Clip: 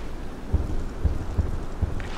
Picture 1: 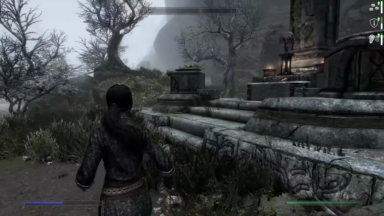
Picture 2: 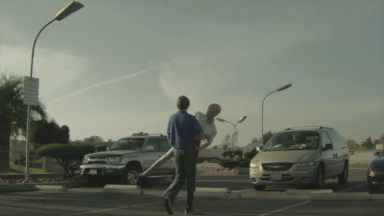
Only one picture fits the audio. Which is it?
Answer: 1